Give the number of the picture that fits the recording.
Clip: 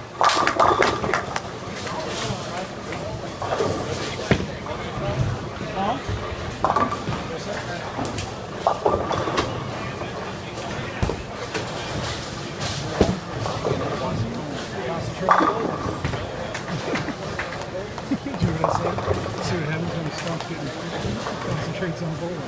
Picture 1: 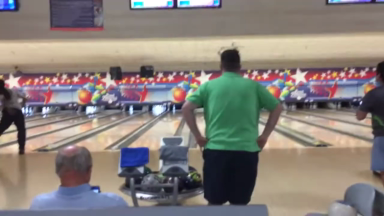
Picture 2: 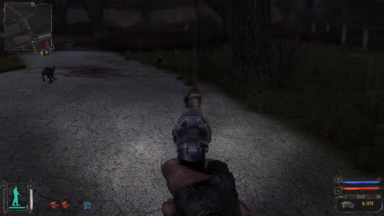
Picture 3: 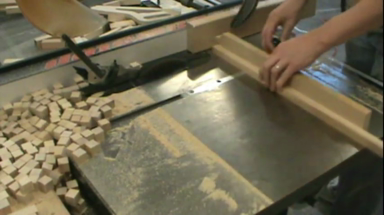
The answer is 1